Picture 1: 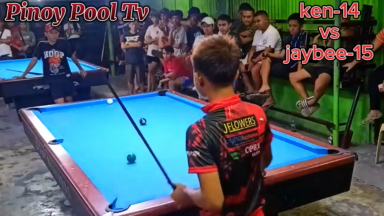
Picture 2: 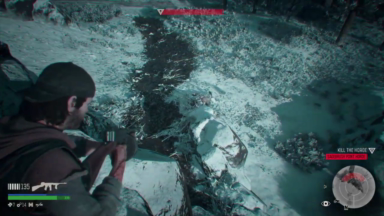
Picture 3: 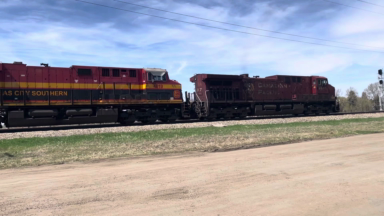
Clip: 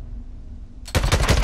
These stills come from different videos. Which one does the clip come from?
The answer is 2